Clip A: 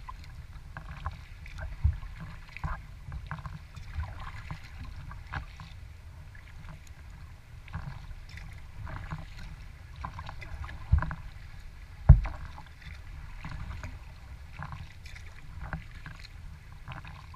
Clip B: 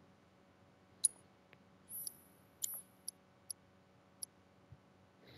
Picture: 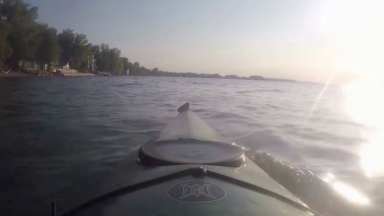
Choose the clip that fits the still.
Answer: A